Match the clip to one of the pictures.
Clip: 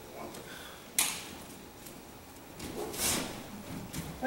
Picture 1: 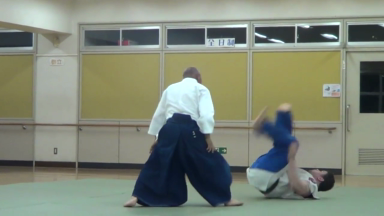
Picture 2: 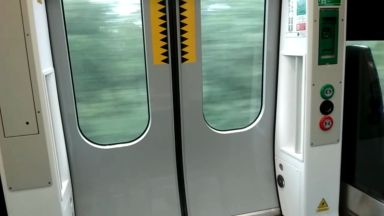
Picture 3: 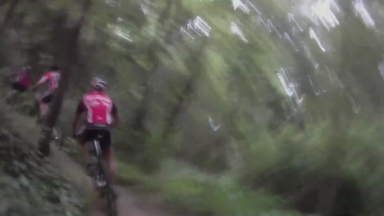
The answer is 1